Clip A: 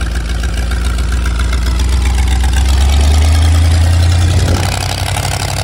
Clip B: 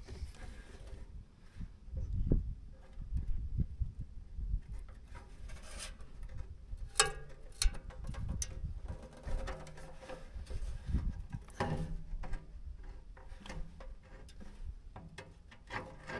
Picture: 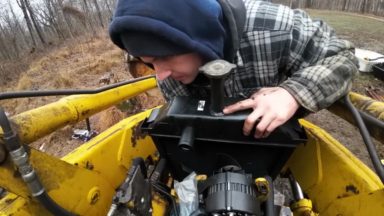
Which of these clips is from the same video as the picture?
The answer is B